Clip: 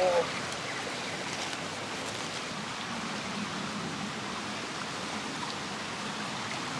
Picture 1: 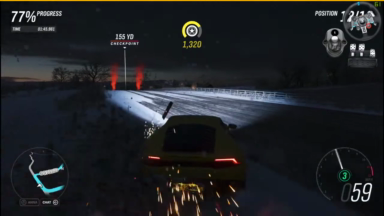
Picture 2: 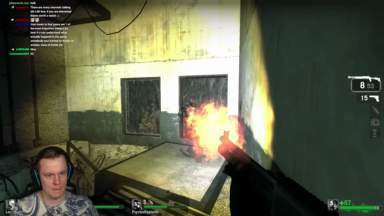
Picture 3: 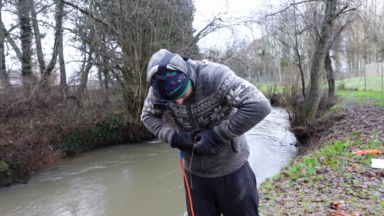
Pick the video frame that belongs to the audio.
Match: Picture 3